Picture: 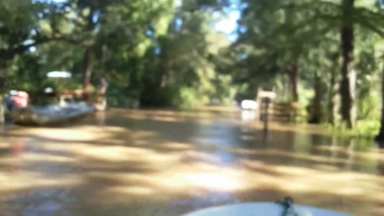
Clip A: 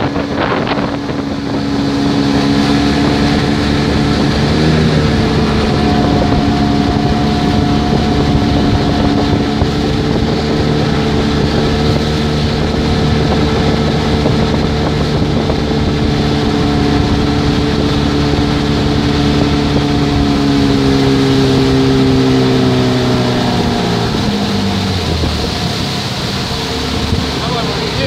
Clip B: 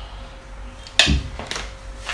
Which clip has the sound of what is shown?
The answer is A